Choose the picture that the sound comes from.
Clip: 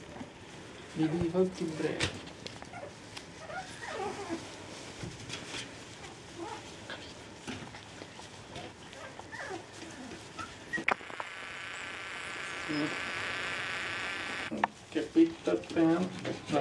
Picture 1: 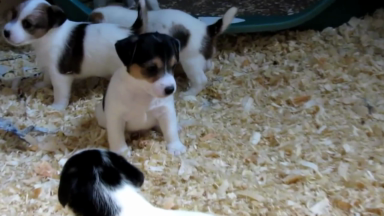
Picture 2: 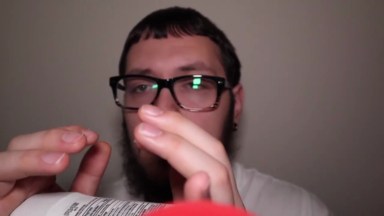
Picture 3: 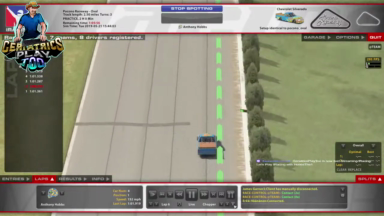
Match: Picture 1